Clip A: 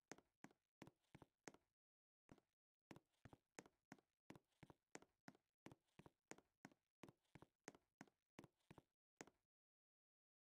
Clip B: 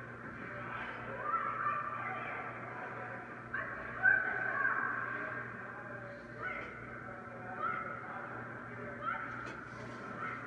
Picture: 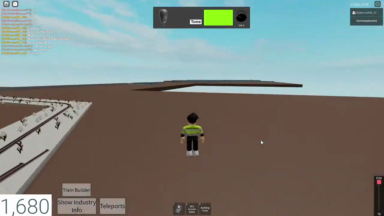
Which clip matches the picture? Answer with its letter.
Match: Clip A